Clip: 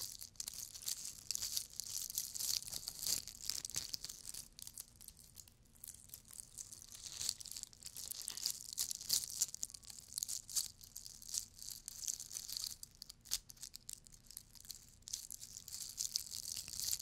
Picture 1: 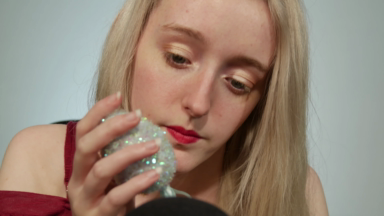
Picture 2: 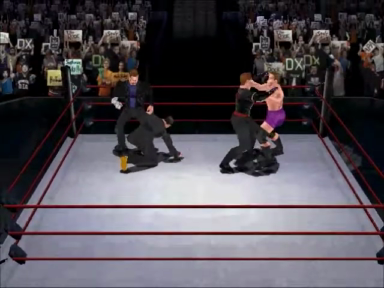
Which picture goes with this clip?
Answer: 1